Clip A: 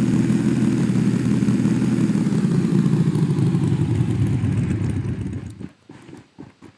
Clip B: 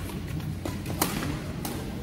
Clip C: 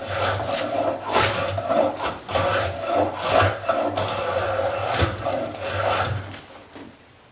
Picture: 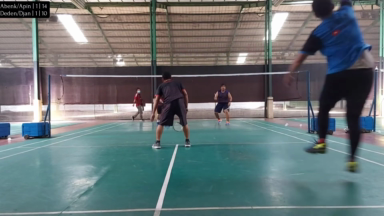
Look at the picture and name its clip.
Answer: B